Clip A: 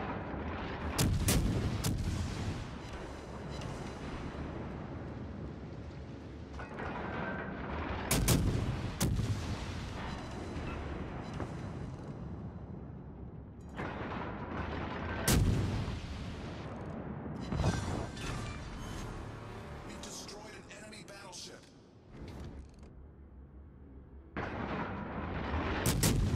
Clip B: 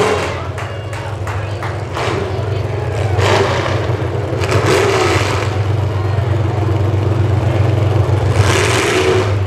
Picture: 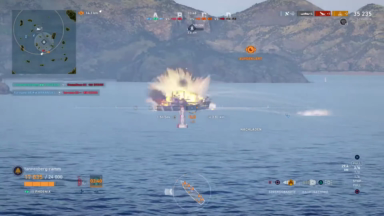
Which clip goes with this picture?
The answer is A